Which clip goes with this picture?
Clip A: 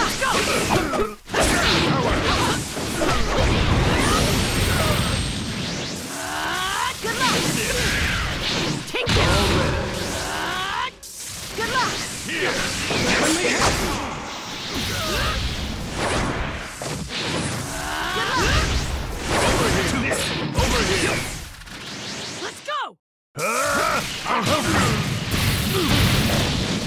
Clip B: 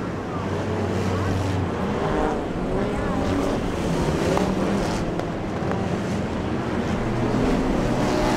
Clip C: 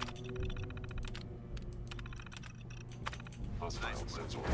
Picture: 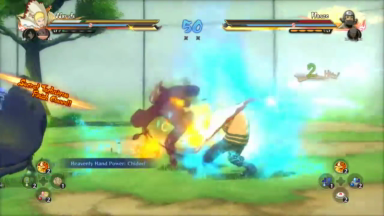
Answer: A